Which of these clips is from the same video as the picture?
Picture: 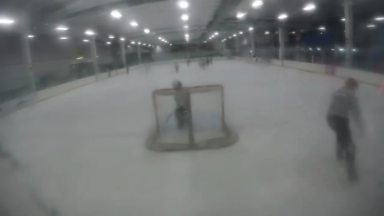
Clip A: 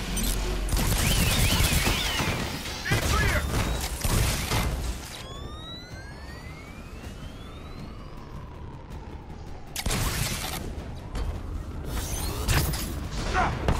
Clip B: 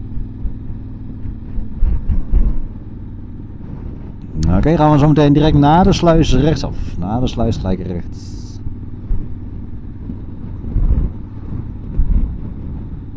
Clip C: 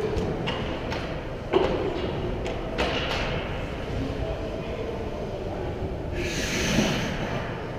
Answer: C